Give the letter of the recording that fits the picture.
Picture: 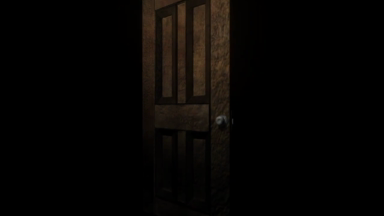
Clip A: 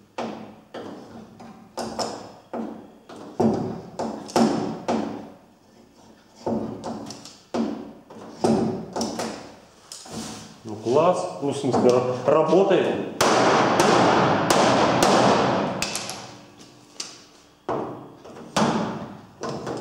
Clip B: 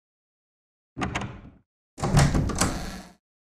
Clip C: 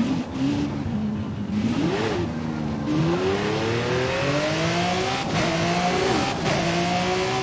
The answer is B